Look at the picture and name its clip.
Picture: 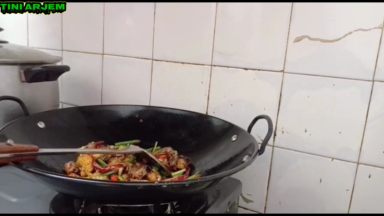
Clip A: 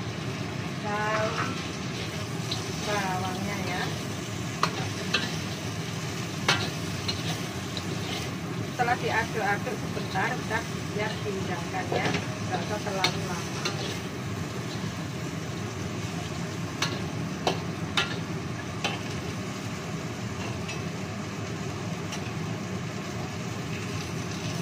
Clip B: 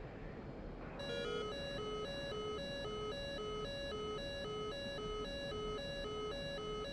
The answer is A